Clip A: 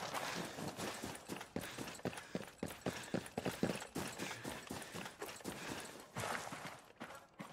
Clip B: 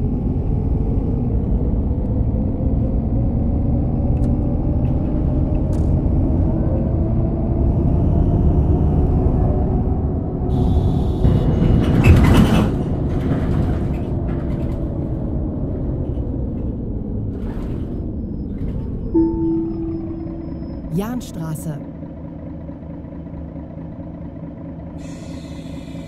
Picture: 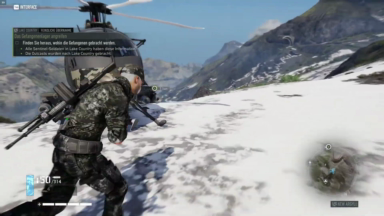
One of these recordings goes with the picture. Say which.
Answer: A